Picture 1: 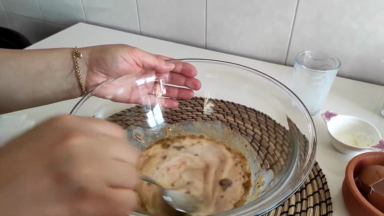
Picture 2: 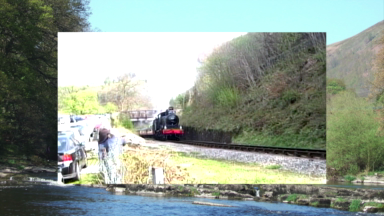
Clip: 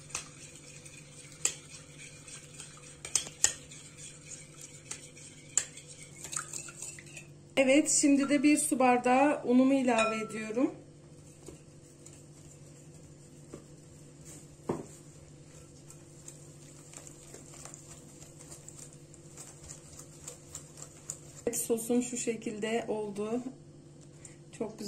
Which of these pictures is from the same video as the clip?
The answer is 1